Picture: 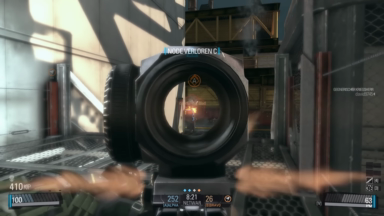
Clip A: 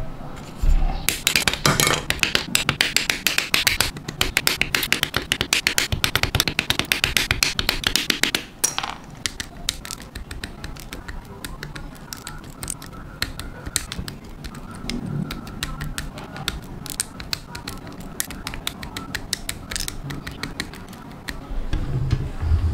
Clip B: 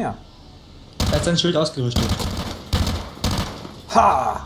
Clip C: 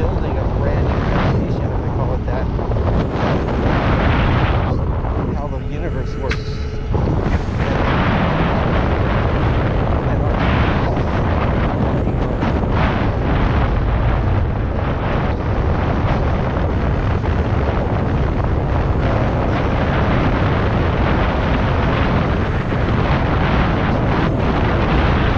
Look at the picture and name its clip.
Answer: B